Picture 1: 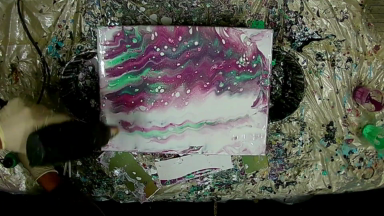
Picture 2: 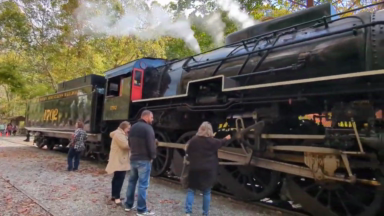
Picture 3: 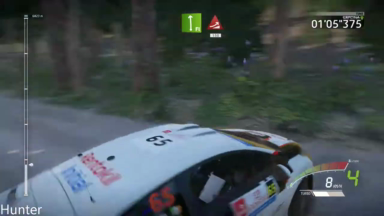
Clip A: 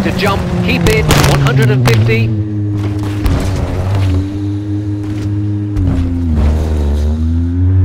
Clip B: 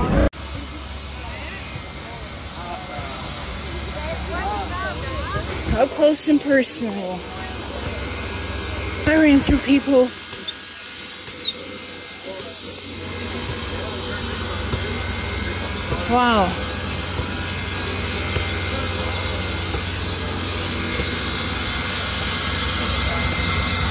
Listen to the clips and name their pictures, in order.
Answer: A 3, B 2